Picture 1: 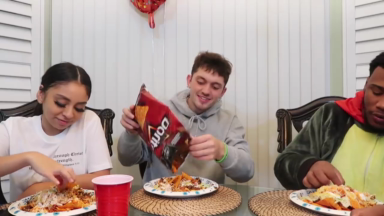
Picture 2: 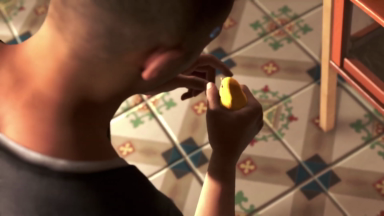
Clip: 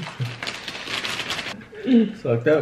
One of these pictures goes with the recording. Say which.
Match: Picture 1